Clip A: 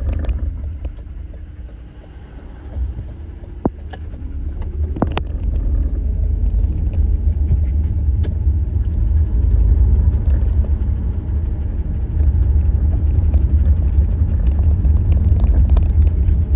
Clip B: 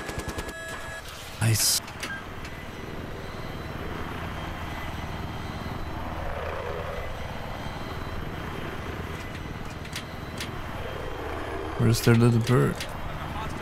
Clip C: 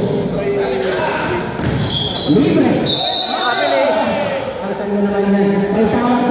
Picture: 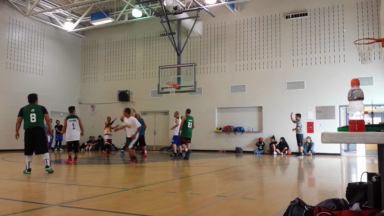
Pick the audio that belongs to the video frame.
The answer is C